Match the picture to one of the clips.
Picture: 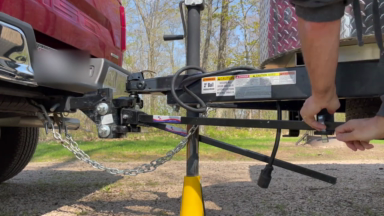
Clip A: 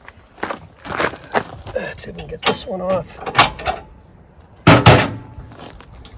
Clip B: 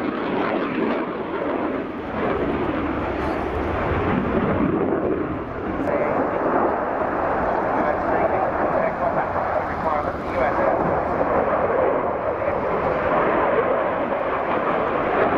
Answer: A